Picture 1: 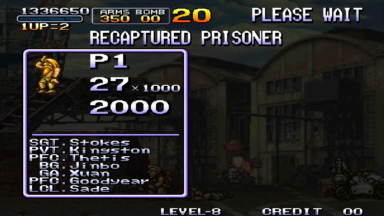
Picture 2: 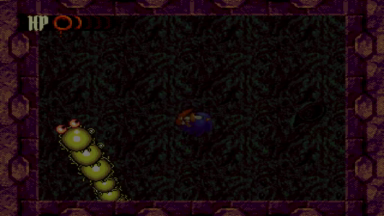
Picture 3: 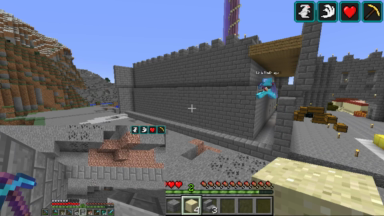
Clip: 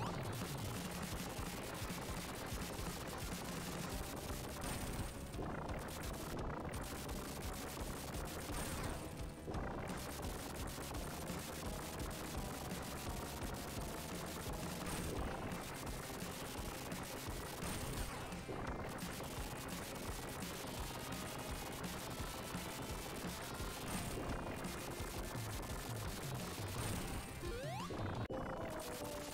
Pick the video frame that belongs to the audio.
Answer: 2